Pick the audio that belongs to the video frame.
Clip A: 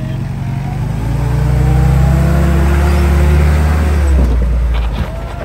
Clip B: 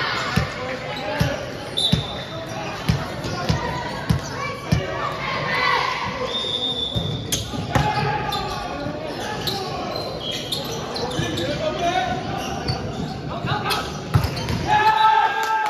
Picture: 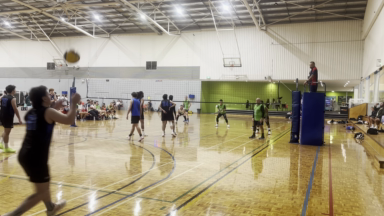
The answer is B